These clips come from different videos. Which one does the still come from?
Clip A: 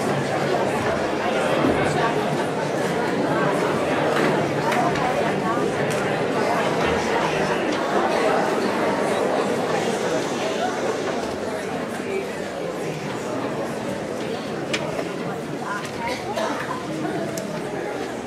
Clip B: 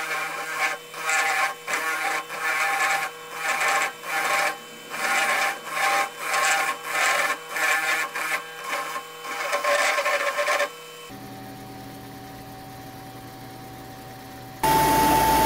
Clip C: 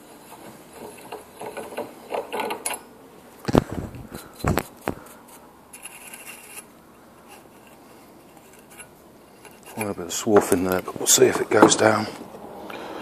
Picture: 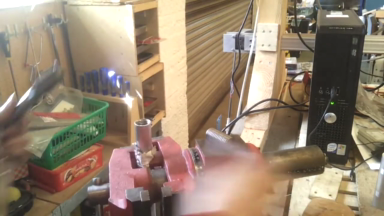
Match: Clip C